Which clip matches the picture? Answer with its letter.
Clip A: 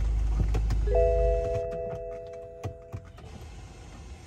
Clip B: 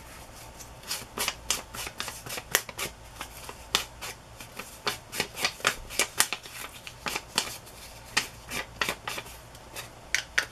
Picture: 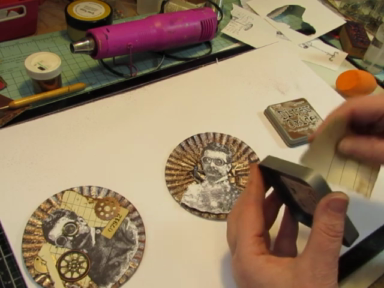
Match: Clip B